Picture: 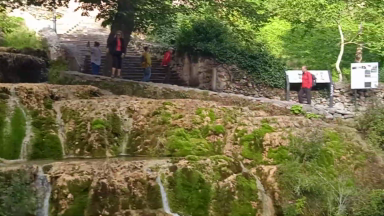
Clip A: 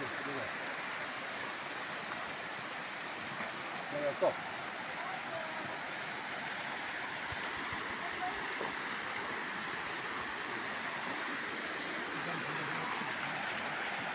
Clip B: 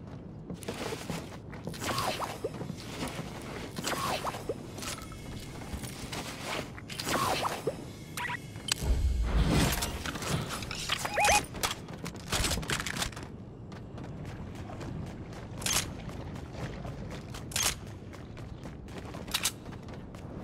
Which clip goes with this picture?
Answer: A